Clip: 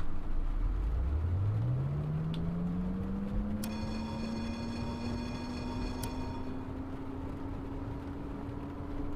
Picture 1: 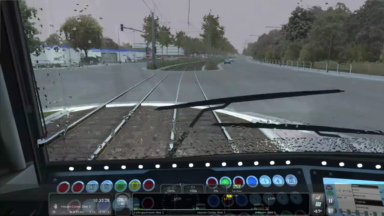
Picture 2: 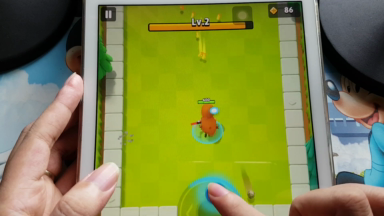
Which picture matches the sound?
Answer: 1